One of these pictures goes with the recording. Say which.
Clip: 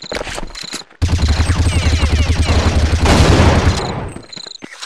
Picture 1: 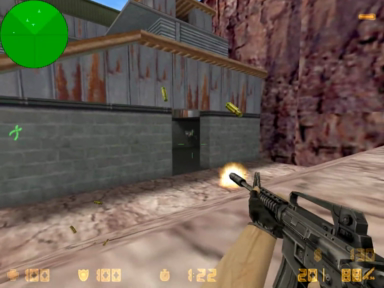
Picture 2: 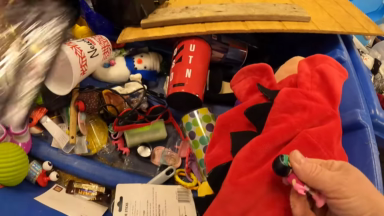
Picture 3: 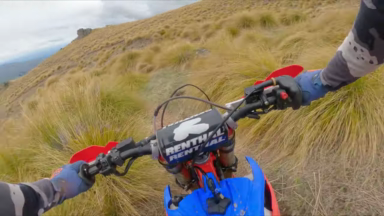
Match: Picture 1